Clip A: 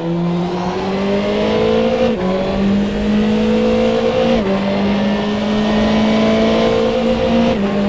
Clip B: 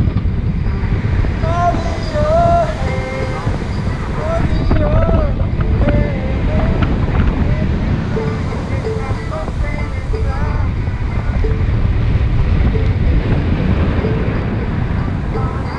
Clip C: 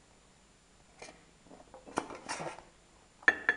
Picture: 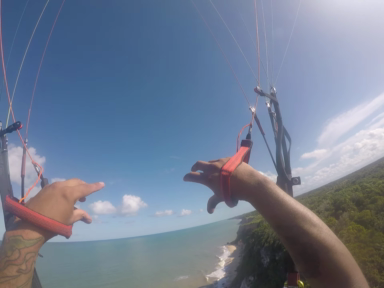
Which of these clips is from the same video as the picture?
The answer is B